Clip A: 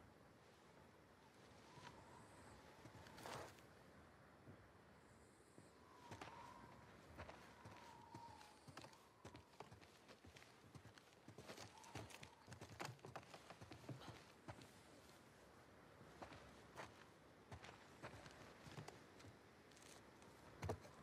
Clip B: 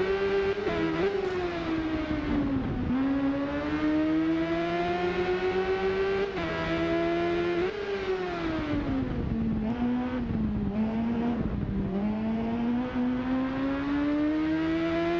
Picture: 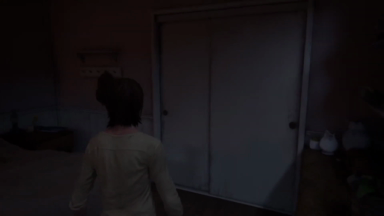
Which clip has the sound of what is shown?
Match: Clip A